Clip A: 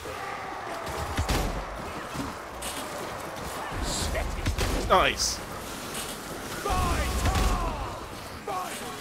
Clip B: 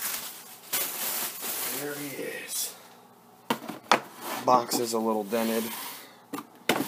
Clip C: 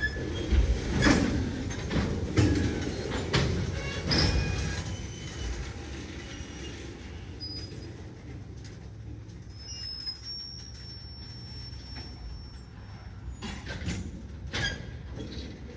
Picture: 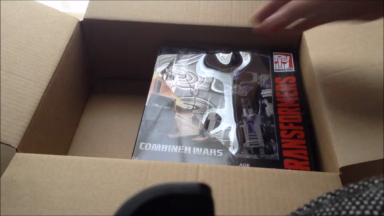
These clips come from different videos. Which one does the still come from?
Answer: B